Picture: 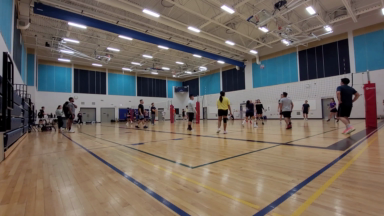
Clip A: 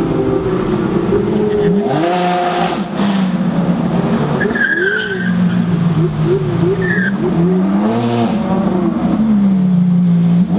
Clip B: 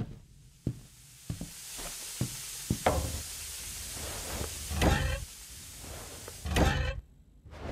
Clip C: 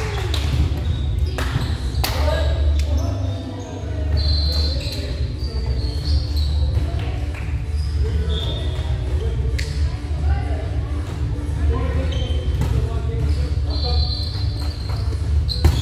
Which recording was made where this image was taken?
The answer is C